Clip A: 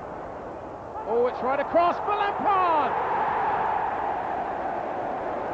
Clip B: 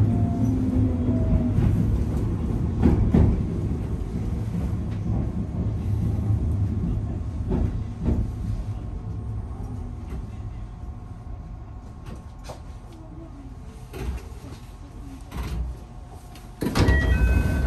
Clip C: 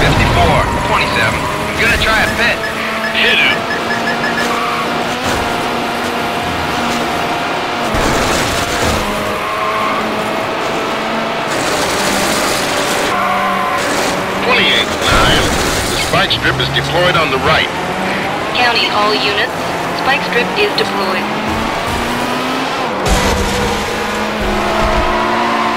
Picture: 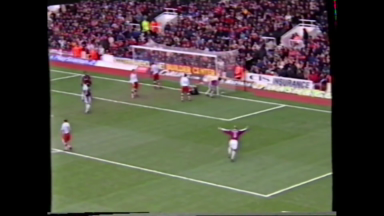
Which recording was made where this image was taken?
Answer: A